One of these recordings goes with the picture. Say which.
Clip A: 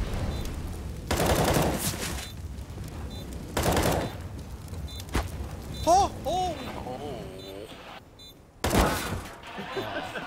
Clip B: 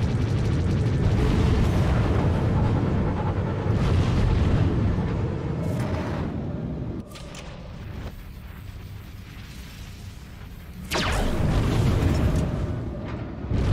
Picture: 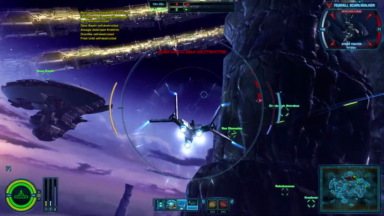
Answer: B